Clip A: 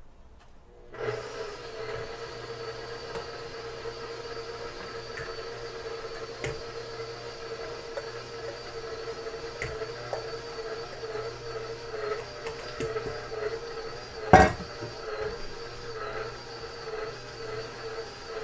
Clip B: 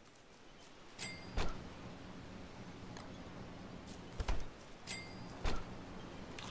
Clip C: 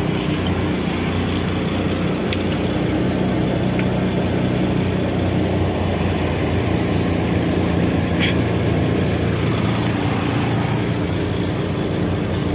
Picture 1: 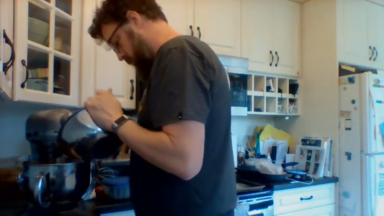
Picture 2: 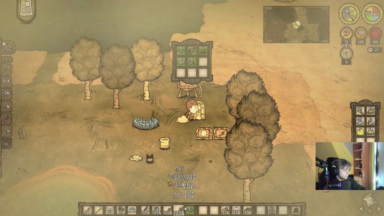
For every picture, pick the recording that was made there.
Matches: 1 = A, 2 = B